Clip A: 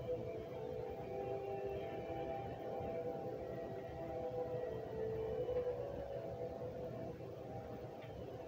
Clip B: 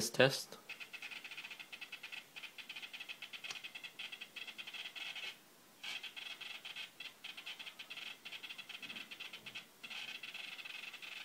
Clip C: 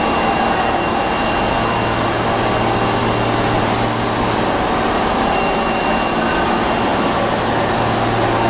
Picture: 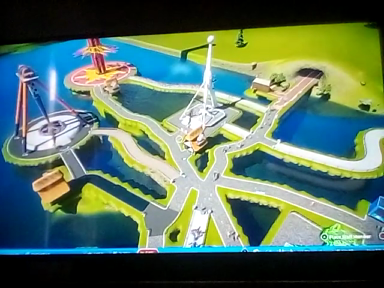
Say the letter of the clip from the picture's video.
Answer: A